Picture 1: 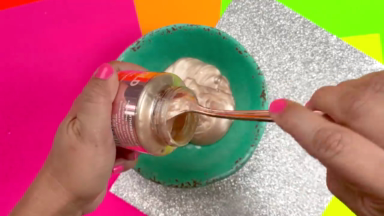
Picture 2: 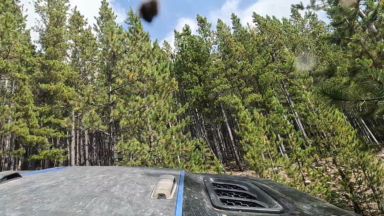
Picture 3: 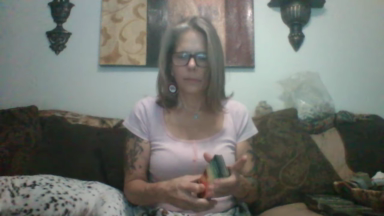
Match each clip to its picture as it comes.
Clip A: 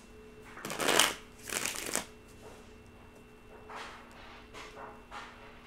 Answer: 3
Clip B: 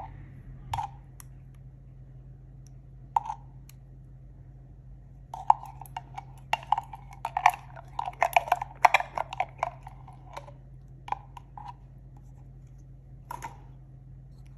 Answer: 1